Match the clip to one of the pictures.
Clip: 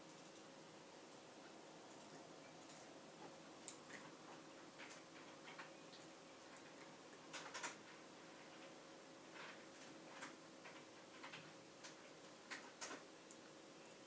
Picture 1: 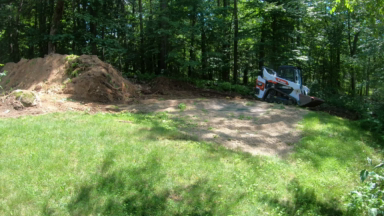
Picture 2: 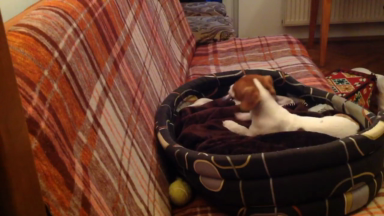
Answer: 2